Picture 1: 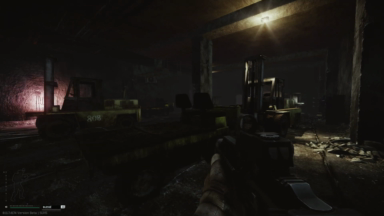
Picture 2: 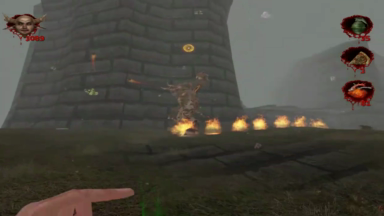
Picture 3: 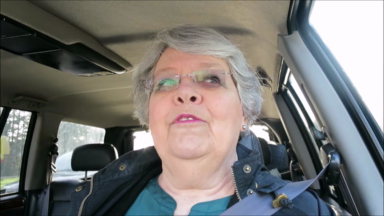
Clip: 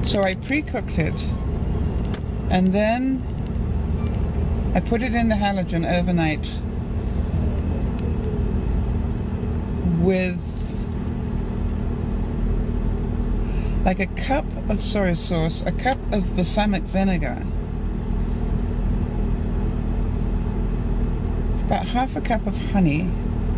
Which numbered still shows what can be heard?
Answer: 3